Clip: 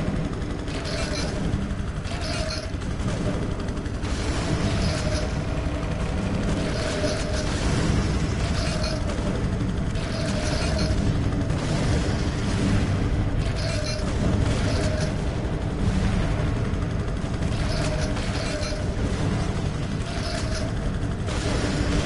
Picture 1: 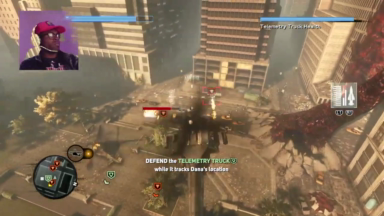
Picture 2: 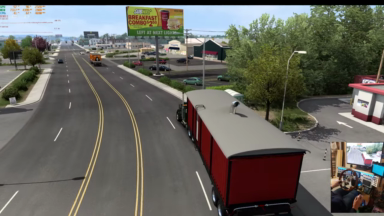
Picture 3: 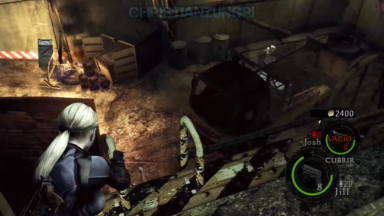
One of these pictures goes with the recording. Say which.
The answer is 1